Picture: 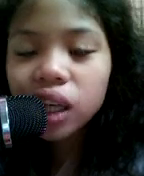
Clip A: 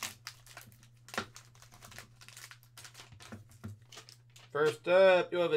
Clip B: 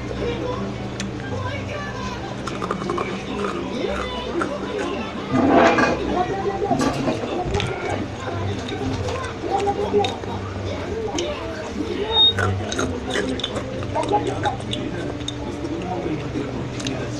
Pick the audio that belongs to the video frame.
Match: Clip B